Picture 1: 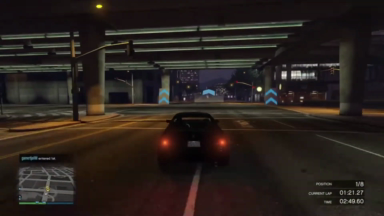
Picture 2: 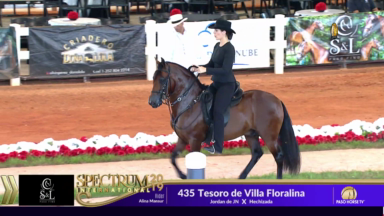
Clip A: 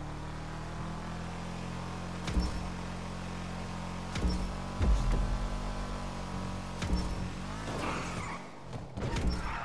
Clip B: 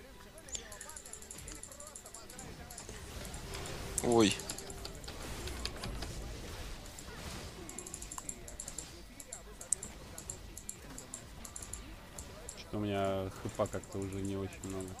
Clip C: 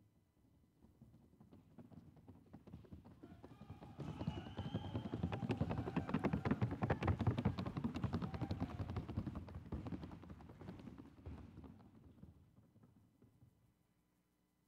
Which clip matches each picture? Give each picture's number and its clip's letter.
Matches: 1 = A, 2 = C